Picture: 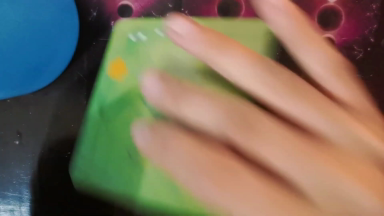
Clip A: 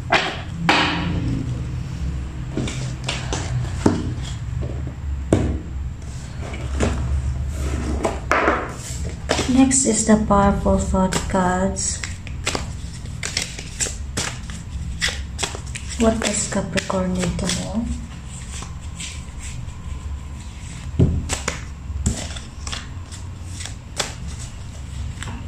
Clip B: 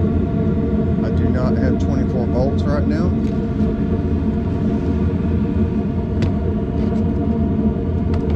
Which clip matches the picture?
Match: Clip A